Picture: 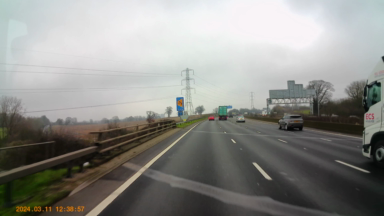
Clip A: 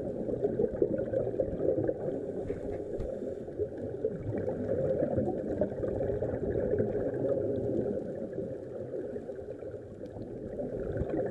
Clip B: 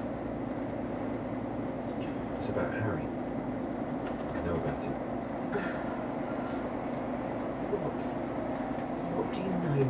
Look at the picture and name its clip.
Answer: B